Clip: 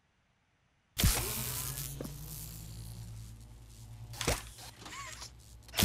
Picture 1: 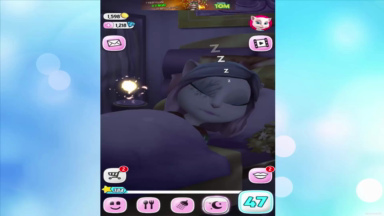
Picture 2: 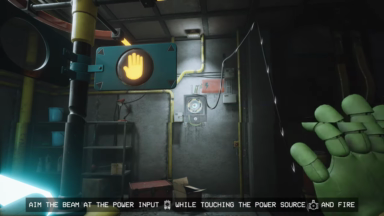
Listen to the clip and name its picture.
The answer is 2